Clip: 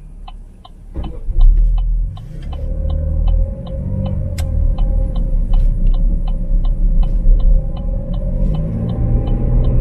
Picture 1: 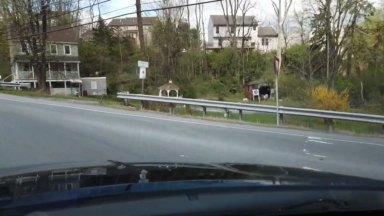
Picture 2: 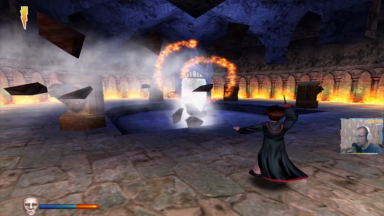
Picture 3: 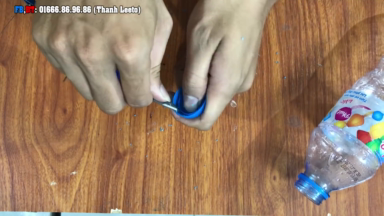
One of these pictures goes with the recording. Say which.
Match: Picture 1